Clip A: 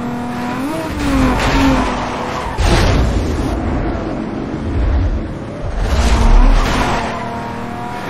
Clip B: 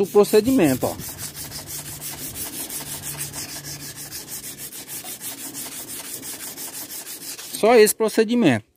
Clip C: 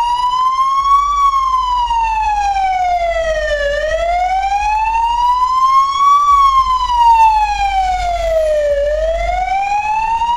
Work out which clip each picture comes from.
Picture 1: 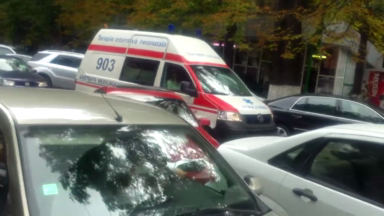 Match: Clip C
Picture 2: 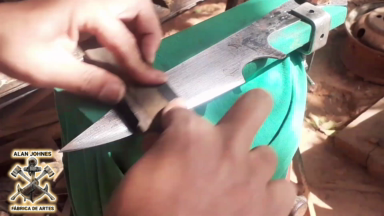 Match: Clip B